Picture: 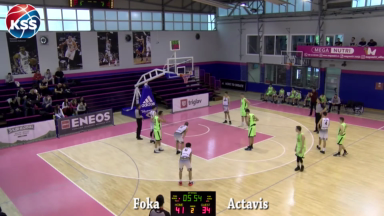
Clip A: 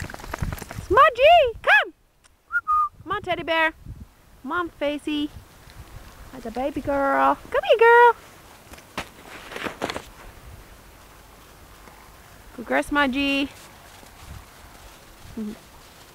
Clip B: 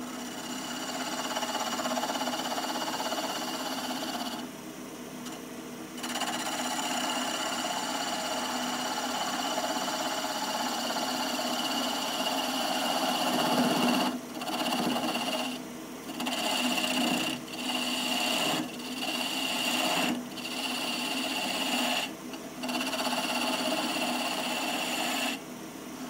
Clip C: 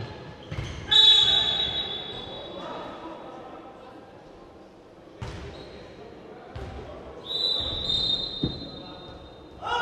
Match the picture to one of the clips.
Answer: C